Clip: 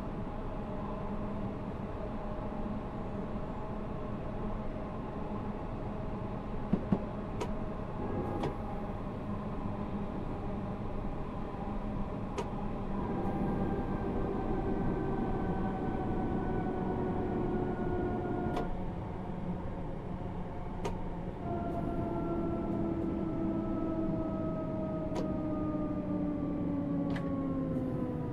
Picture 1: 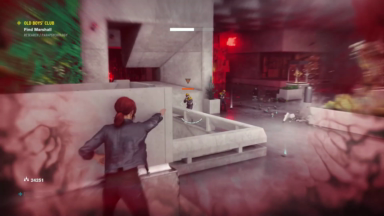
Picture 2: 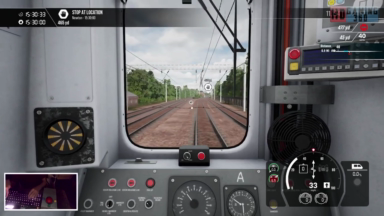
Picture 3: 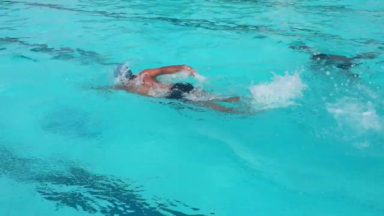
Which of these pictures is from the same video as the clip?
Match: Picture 2